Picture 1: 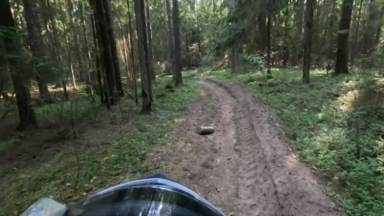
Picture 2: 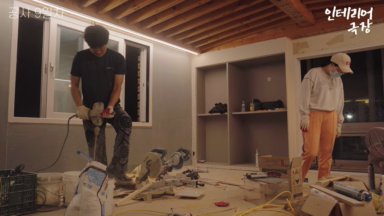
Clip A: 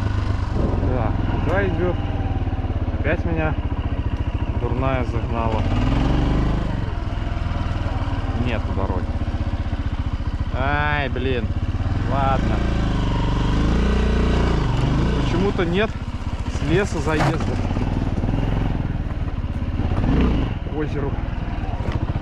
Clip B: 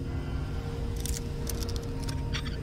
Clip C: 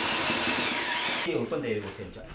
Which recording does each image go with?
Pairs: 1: A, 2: C